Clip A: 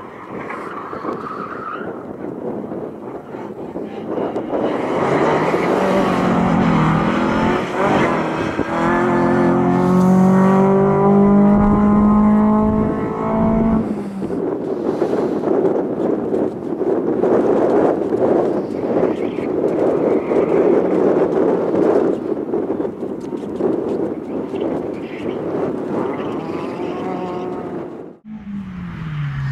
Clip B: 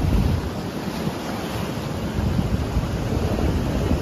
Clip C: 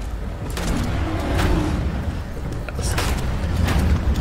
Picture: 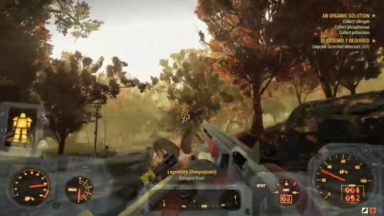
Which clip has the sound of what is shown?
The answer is C